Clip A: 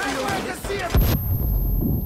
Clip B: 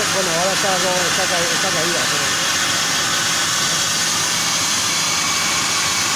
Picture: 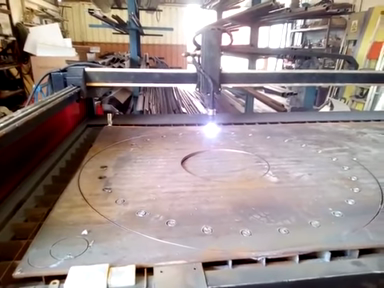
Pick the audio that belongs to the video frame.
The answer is B